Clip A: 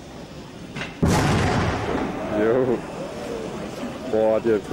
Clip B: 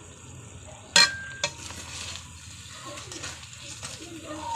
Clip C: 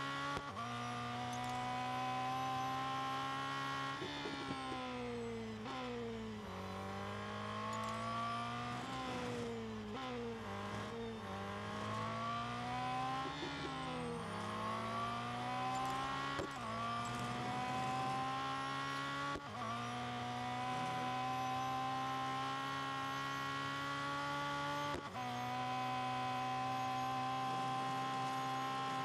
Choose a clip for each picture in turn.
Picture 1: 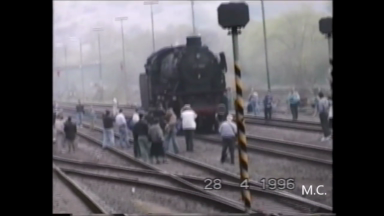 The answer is A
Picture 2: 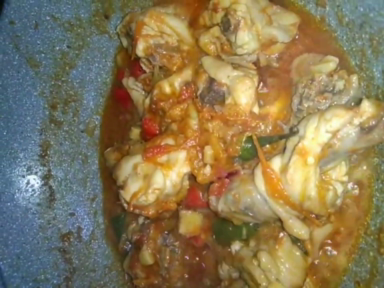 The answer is B